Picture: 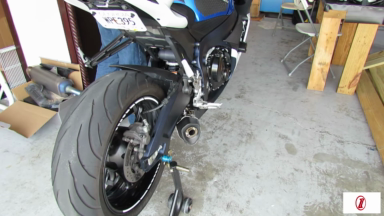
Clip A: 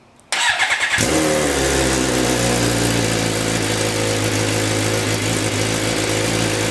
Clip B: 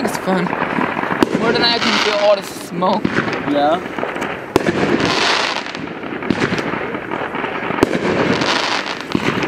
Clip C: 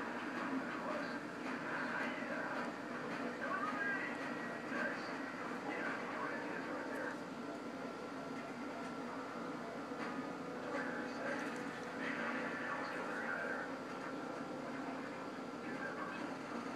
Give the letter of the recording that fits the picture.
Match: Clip A